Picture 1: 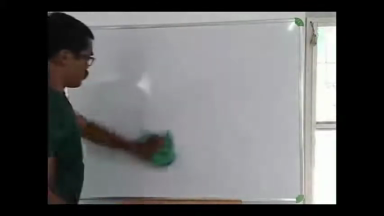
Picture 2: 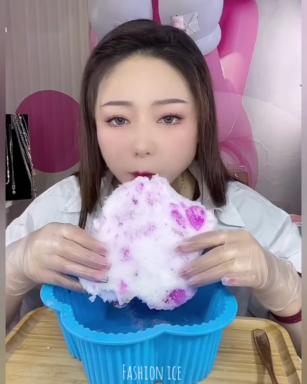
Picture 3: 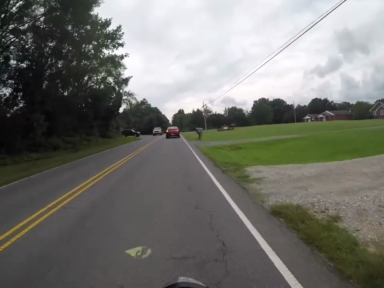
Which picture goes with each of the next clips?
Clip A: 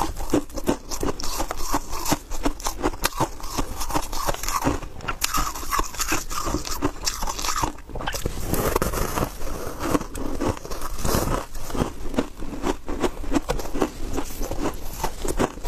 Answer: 2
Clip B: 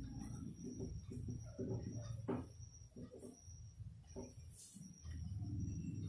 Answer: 1